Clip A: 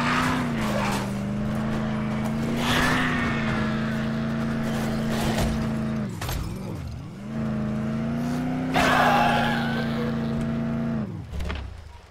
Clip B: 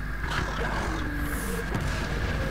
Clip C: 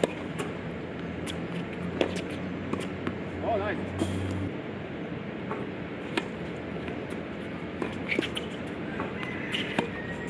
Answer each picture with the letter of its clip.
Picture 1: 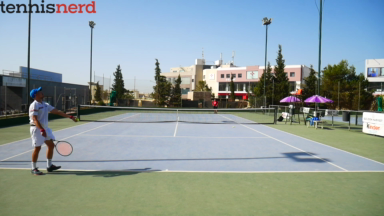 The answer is C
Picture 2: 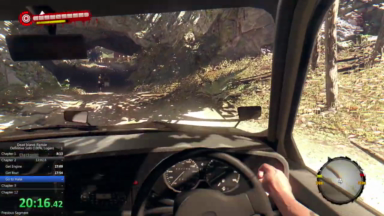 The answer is A